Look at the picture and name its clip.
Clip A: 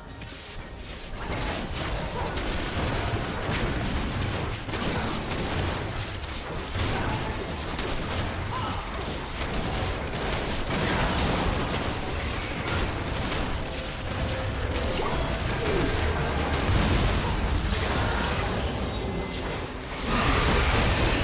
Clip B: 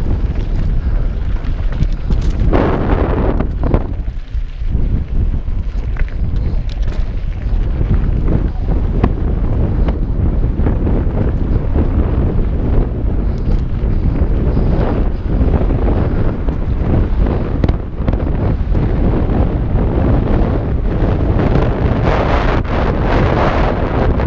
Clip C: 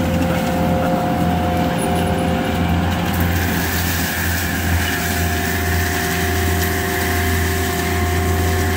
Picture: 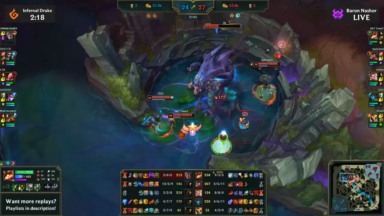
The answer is A